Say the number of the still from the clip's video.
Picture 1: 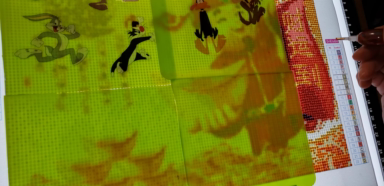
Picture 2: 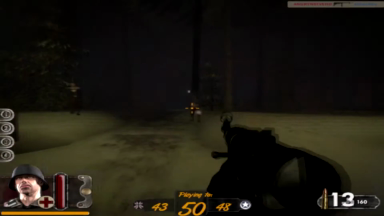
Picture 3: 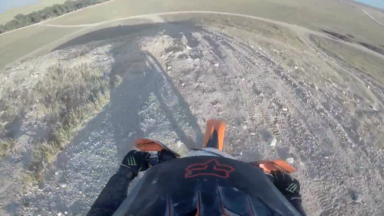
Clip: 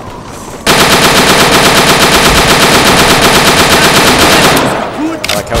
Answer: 2